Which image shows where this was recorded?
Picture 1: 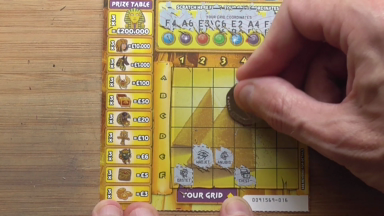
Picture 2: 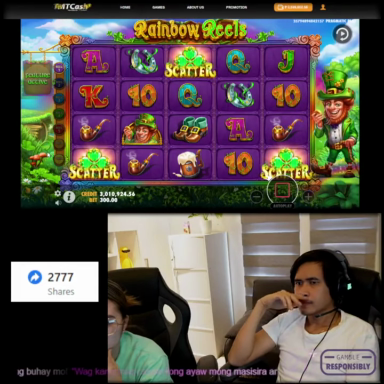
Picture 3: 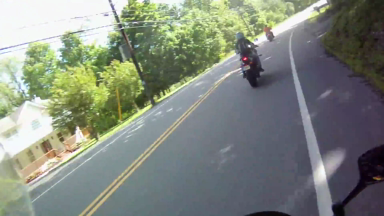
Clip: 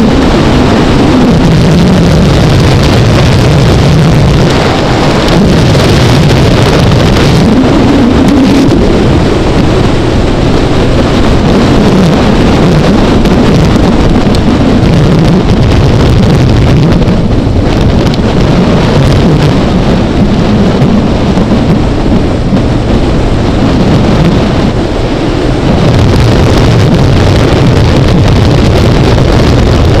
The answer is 3